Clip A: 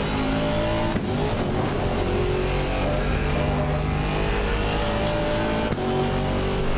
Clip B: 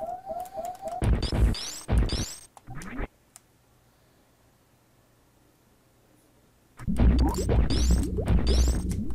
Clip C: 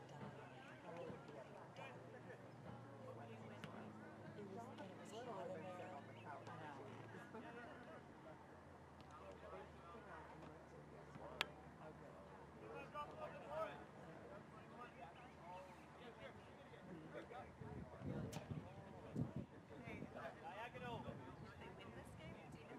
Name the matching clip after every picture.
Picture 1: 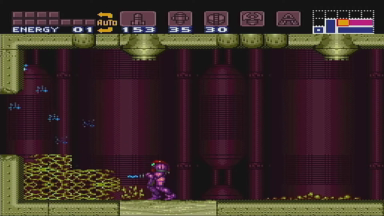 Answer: B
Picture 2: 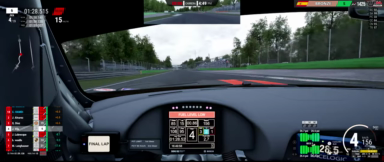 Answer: A